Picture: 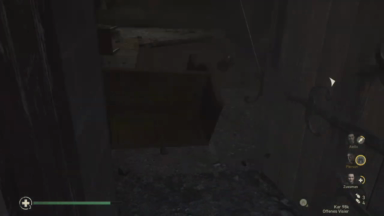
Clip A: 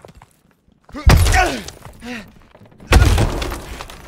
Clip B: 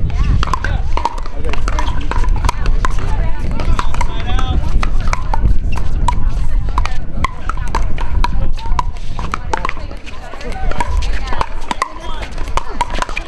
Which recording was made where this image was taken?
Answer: A